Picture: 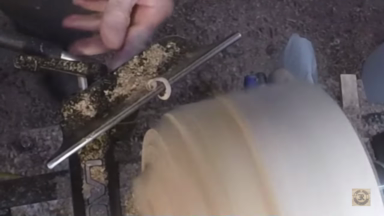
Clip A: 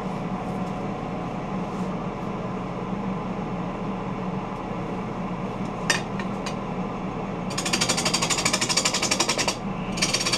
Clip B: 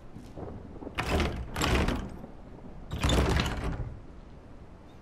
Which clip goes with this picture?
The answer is A